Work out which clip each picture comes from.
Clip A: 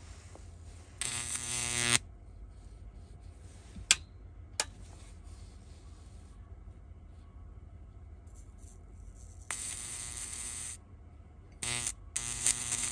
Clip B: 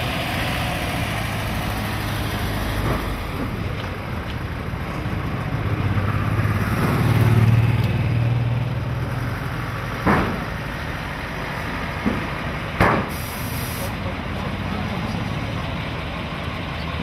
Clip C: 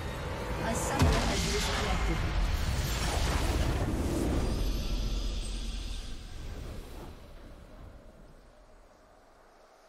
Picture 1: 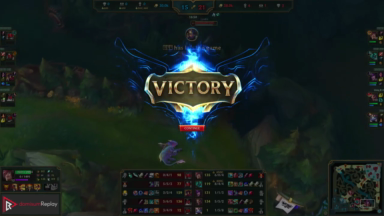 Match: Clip C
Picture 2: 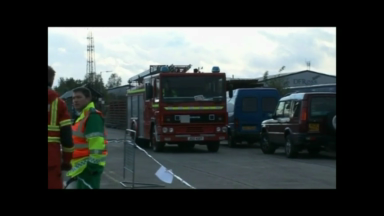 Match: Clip B